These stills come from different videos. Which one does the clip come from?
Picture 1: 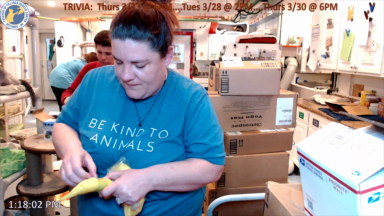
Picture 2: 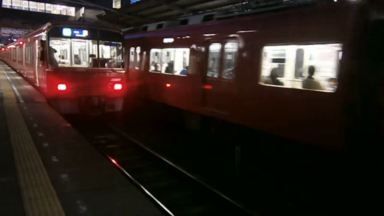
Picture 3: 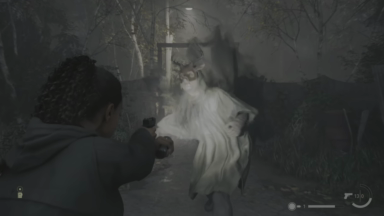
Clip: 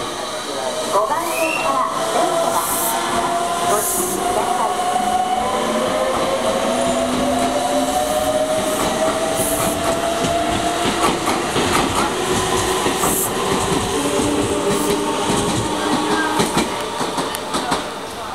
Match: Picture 2